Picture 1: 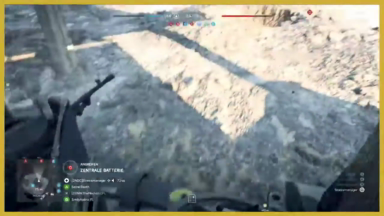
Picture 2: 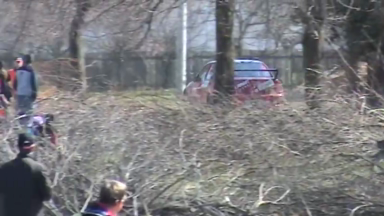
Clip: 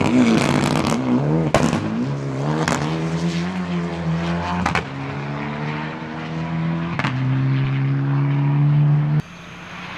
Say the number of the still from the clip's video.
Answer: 2